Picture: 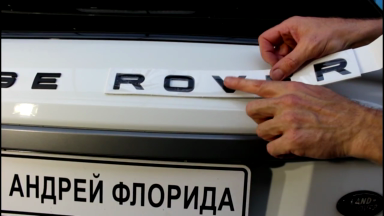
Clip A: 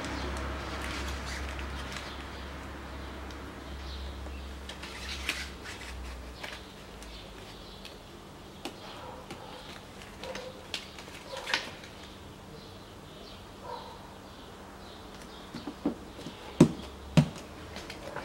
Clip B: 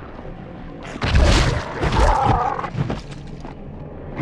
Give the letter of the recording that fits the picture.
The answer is A